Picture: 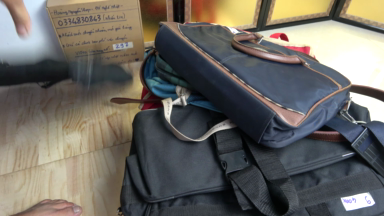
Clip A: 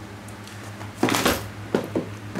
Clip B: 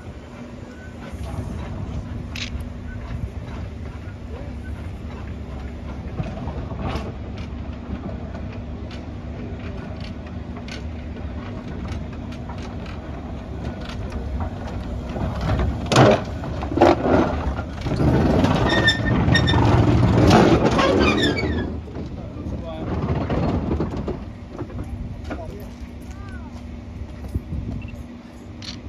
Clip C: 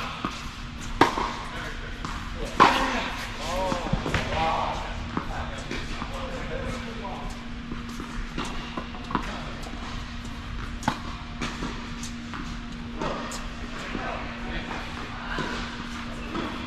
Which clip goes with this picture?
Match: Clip A